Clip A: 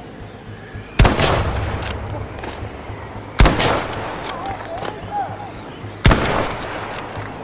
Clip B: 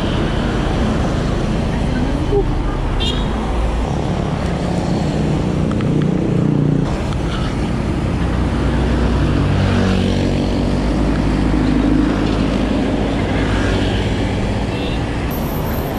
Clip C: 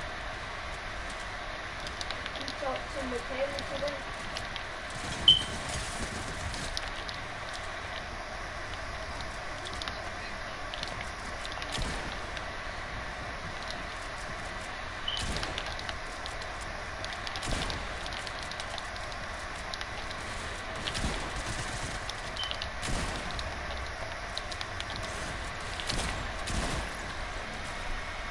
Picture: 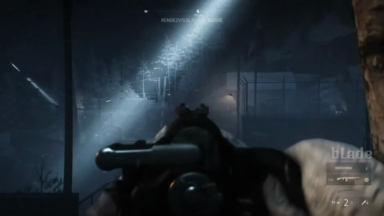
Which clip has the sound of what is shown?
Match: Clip A